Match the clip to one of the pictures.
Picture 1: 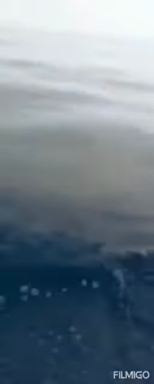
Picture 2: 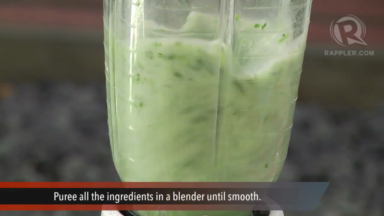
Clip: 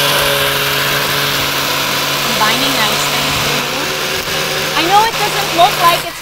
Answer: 2